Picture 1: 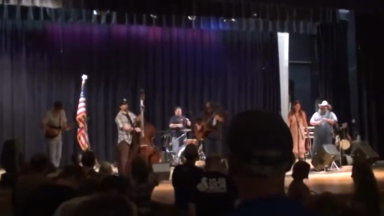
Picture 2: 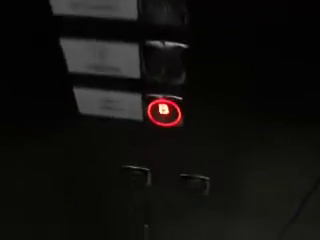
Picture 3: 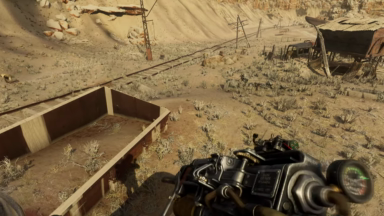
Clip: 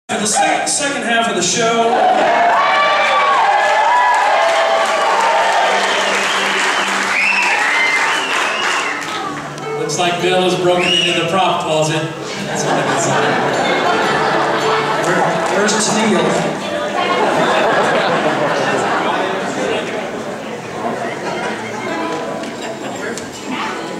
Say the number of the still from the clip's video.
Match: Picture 1